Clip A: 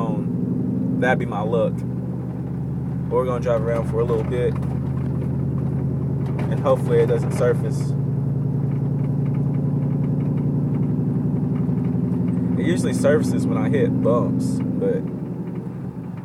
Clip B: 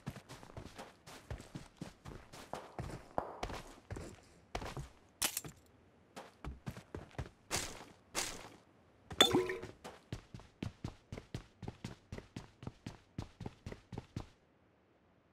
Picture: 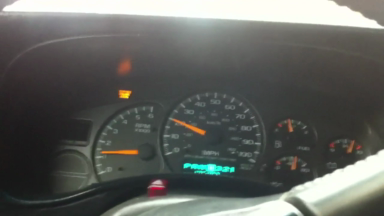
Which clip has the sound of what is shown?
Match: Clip A